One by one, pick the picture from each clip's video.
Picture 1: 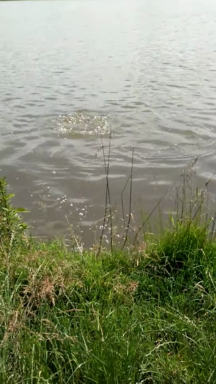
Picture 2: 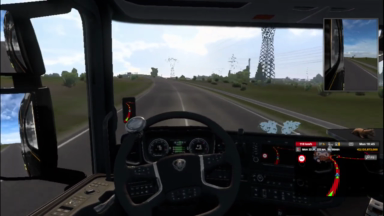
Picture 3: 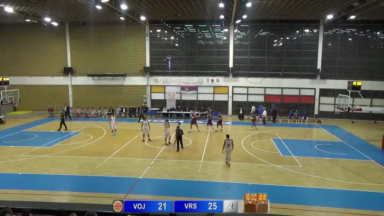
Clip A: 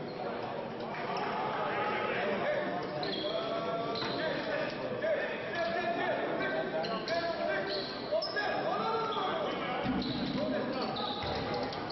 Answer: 3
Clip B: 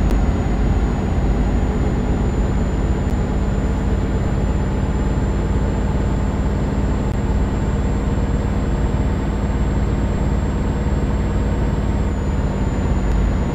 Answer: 2